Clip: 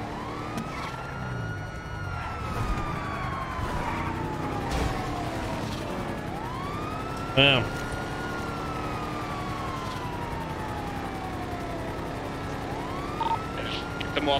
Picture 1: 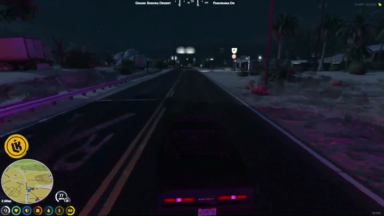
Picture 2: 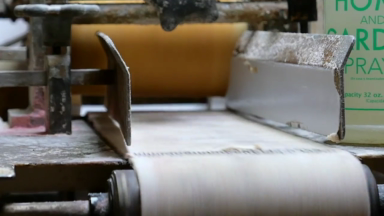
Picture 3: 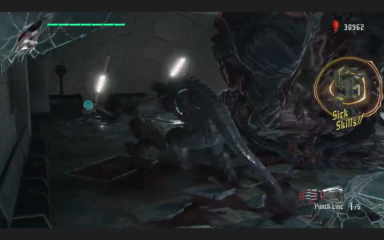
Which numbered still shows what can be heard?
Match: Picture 1